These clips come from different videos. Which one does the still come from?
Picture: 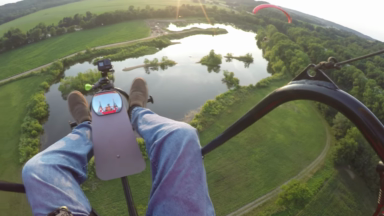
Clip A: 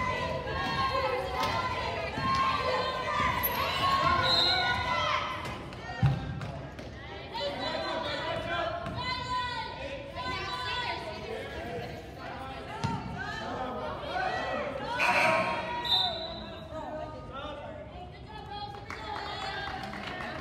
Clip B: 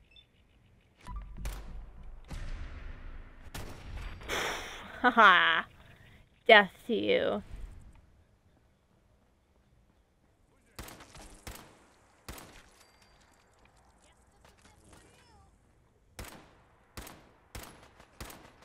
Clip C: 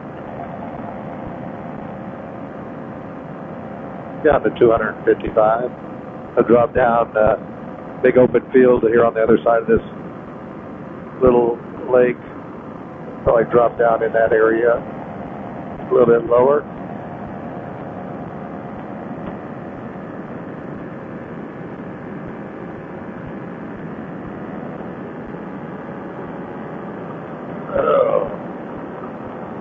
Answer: C